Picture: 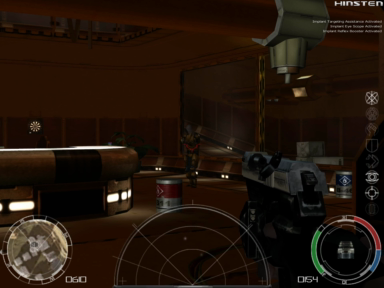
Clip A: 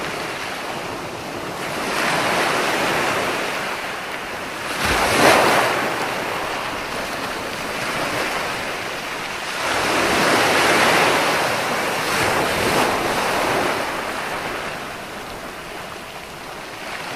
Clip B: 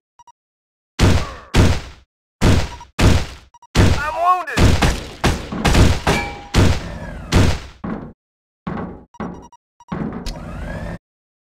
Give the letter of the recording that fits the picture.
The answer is B